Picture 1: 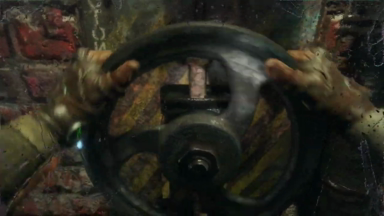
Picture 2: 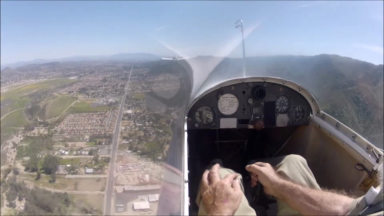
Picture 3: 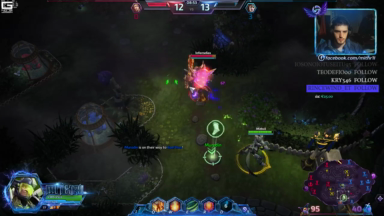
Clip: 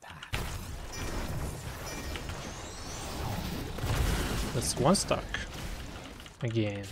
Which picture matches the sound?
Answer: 3